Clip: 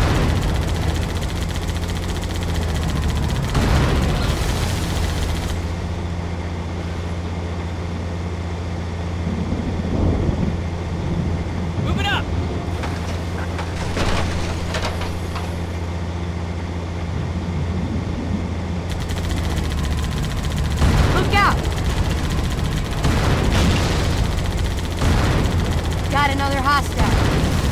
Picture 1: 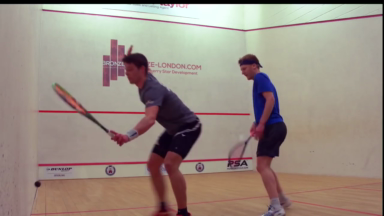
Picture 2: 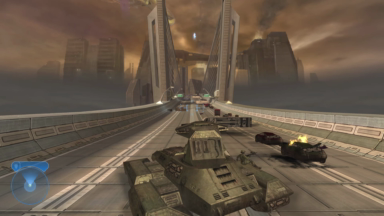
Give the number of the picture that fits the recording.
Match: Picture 2